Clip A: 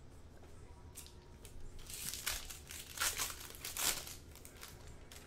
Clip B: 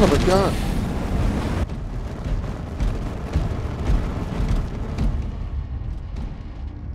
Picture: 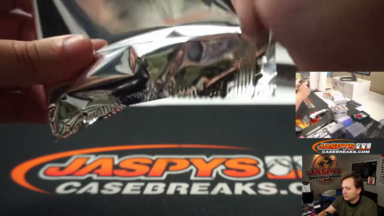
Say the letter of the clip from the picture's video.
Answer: A